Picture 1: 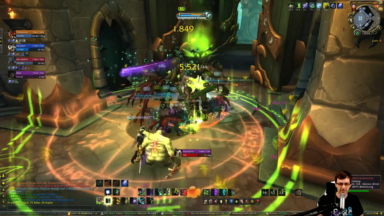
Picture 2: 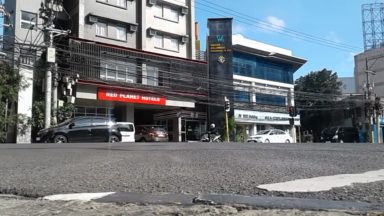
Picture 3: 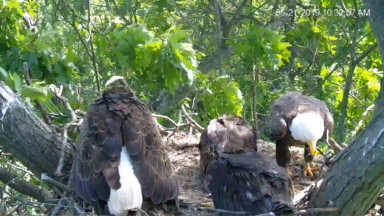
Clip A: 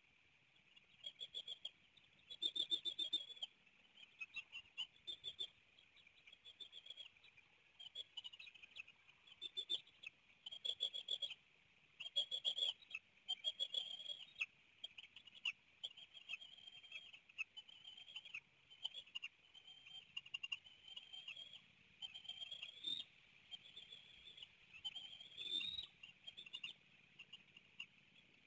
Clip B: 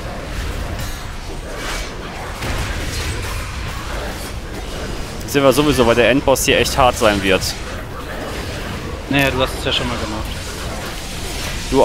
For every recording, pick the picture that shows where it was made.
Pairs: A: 3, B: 1